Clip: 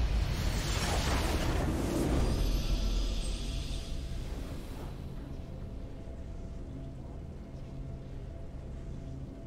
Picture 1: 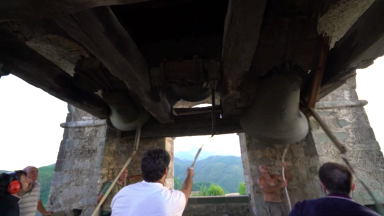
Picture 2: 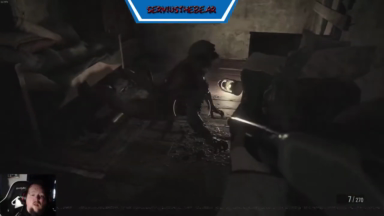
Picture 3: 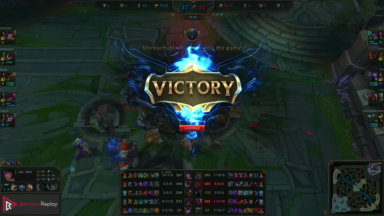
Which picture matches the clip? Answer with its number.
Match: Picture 3